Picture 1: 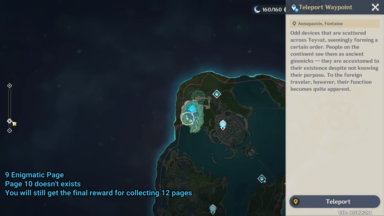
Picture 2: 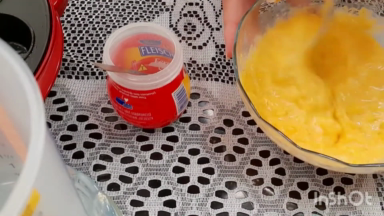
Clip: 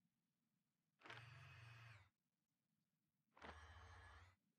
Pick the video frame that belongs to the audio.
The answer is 1